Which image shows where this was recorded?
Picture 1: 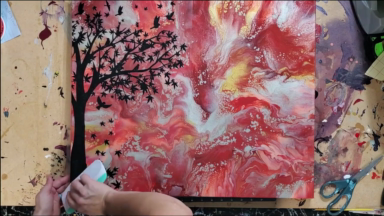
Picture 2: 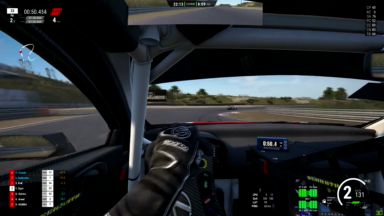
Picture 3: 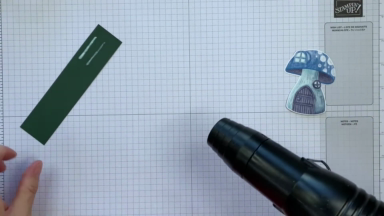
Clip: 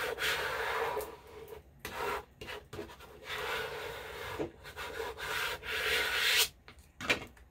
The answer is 1